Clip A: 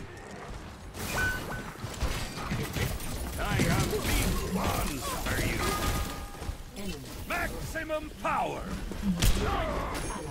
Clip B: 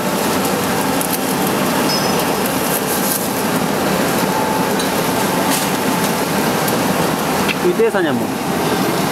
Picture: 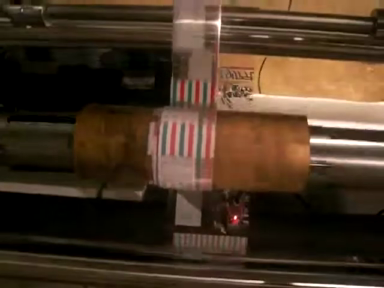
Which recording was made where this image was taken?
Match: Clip B